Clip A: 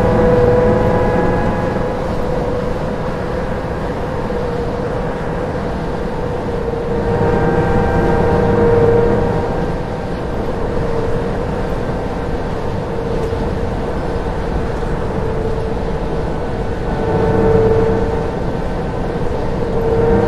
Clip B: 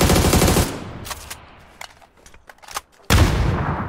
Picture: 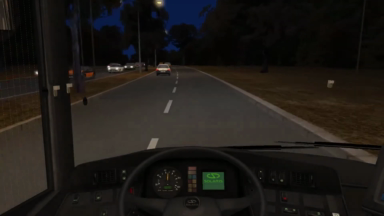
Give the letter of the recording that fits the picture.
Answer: A